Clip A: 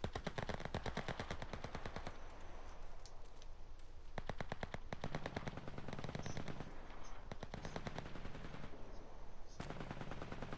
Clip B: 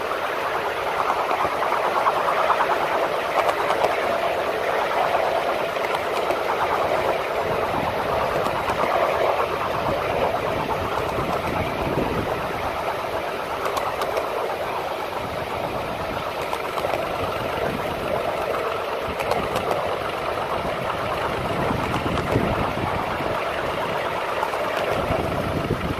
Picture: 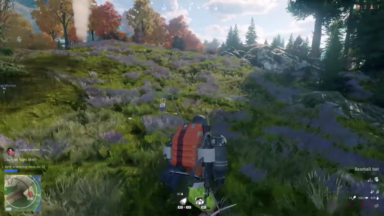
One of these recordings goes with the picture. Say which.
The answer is A